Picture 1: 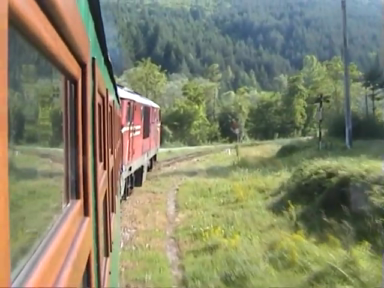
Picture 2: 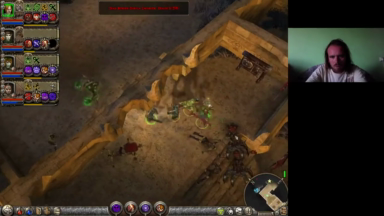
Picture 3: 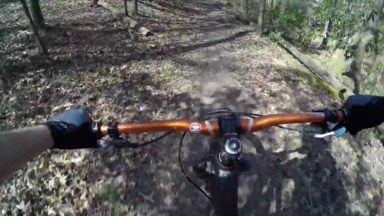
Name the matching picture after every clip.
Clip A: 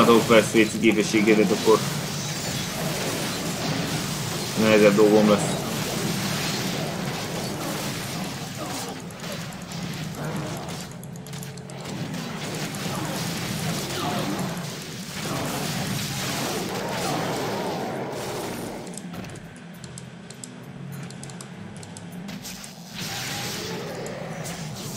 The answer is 2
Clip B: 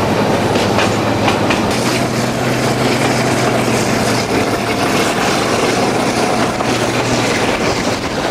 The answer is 1